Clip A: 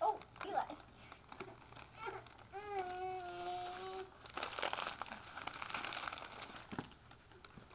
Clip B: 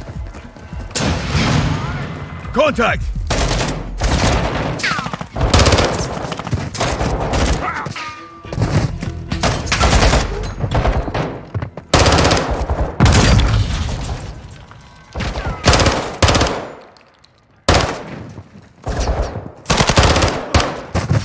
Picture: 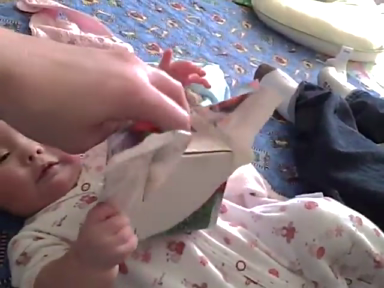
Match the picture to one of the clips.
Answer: A